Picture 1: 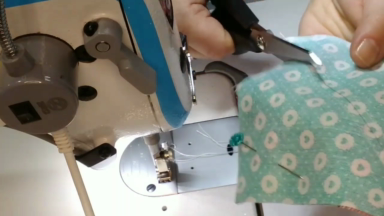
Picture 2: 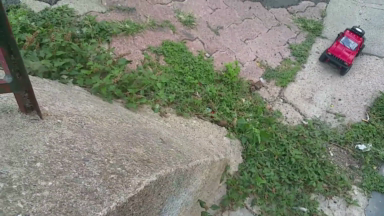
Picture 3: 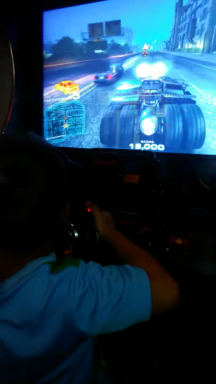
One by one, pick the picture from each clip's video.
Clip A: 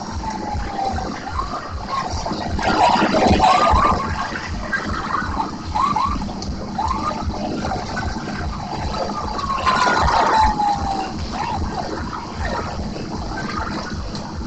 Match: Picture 3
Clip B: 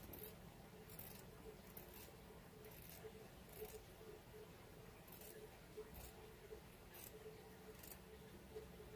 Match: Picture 1